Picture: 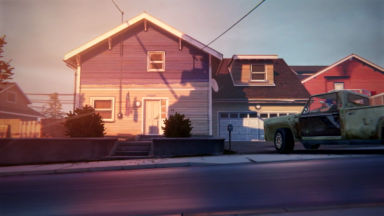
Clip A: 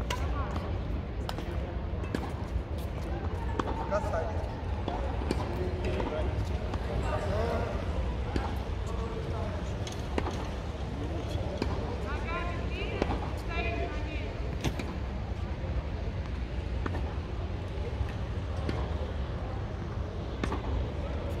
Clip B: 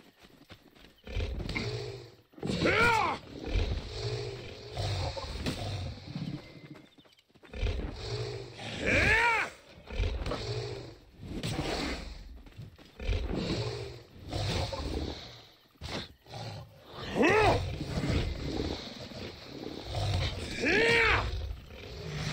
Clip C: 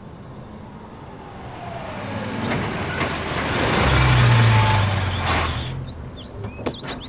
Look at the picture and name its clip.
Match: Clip C